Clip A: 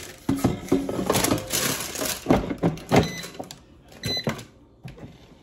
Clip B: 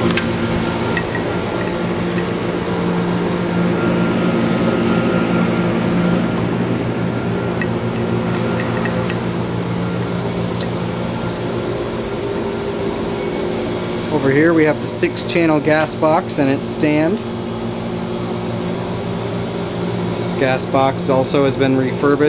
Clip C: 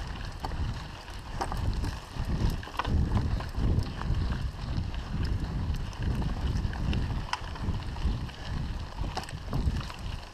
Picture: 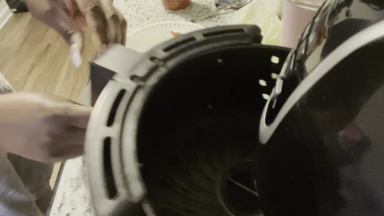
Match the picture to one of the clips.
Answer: A